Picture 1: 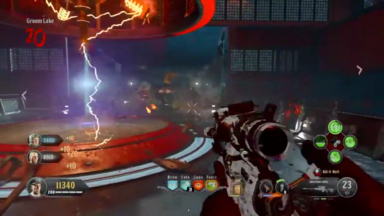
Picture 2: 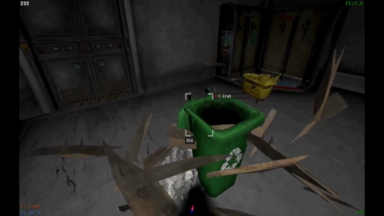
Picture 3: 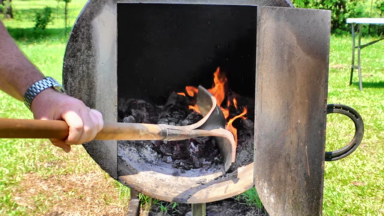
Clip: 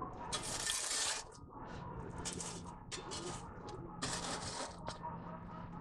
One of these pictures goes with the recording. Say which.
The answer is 3